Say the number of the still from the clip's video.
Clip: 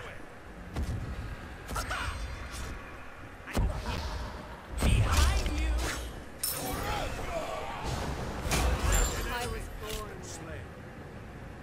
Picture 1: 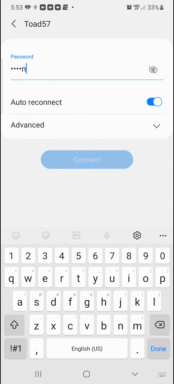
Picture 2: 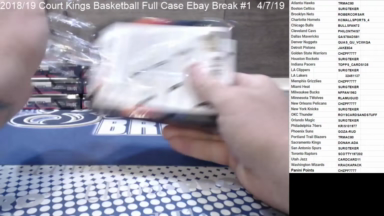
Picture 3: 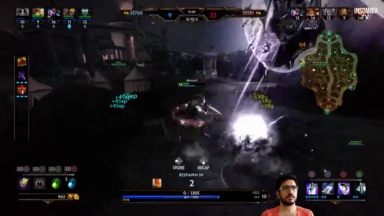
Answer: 3